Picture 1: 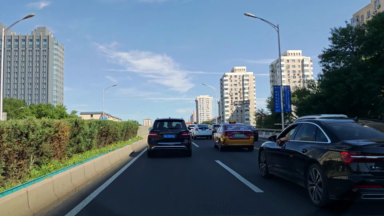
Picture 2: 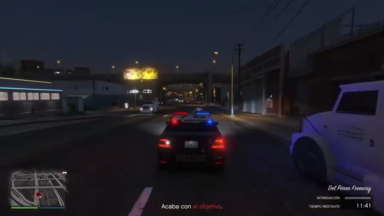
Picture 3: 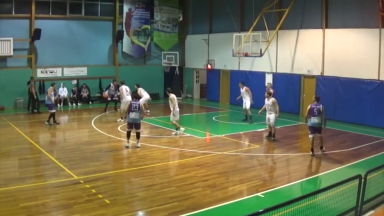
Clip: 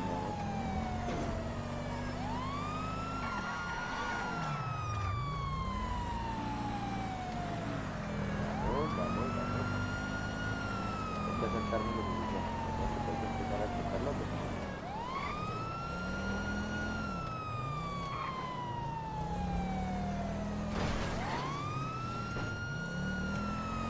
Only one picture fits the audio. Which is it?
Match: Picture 2